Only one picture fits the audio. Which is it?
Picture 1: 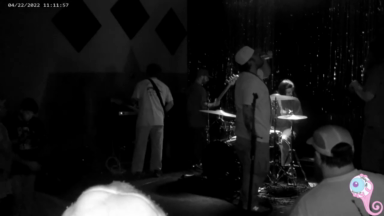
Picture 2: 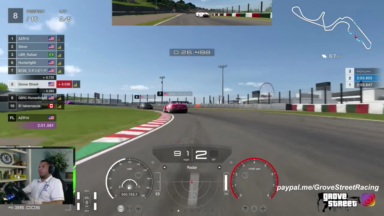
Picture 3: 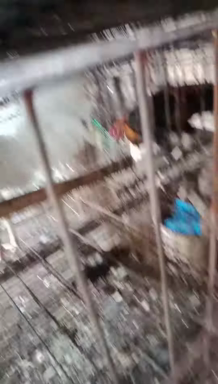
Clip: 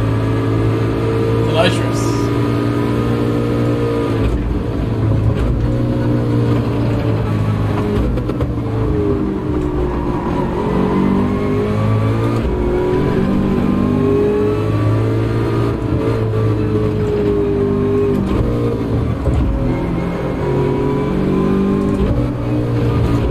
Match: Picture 2